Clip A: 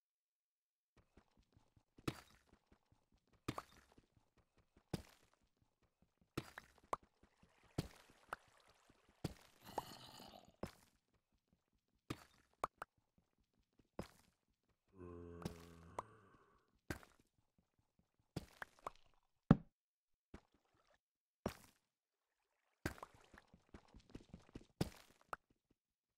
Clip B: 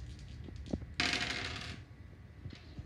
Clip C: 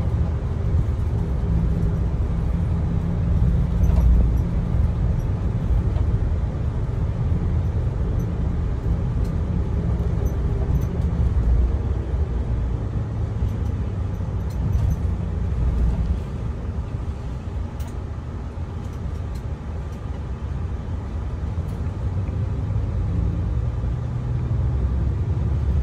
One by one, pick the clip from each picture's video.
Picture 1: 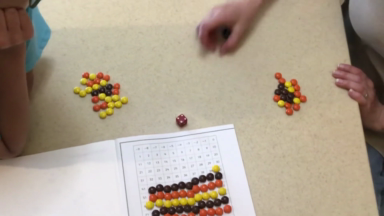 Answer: B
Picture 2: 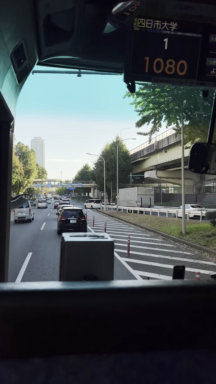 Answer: C